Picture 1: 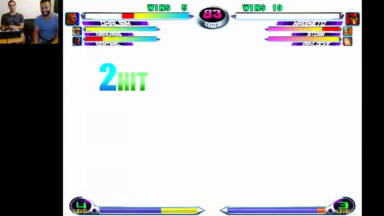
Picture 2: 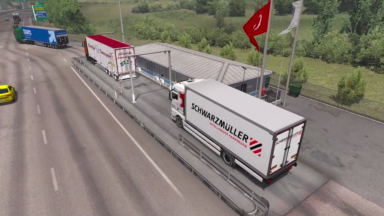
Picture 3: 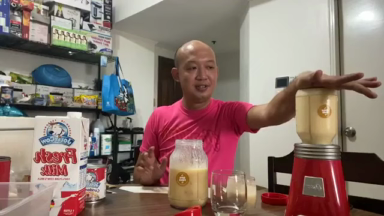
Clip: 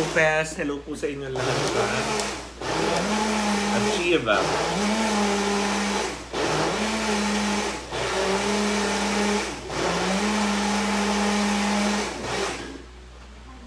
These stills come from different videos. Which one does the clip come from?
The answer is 3